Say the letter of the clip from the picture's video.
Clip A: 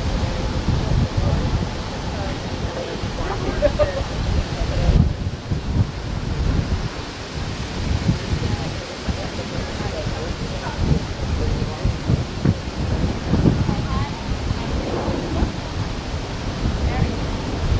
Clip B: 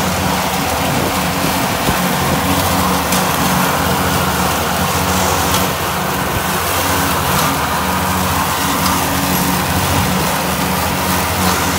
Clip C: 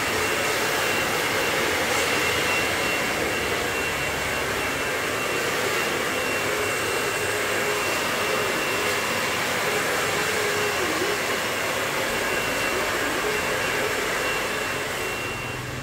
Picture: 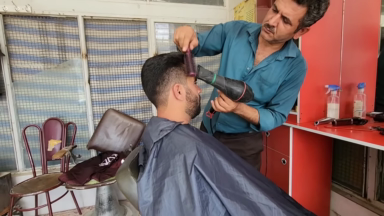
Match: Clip C